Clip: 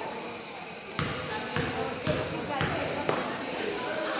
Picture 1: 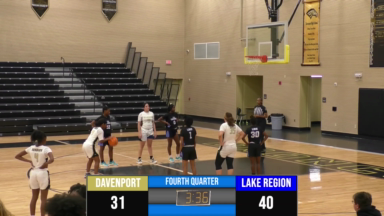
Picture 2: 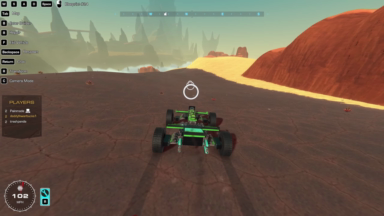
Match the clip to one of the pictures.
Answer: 1